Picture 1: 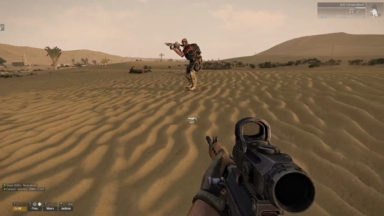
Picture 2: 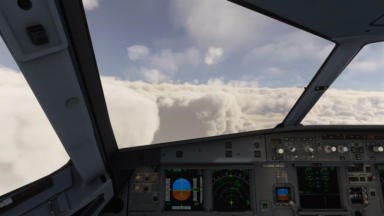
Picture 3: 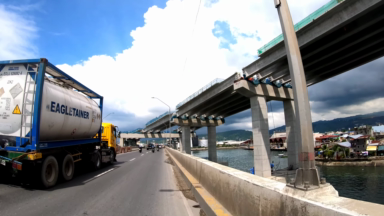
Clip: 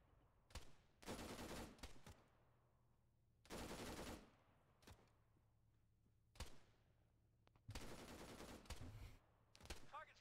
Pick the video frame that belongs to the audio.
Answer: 1